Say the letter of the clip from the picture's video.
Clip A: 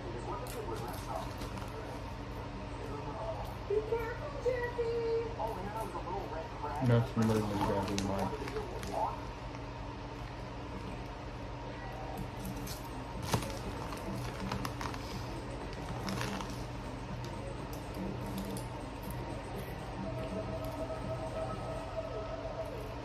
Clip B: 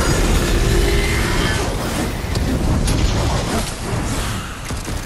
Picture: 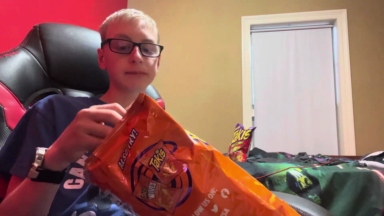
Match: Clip A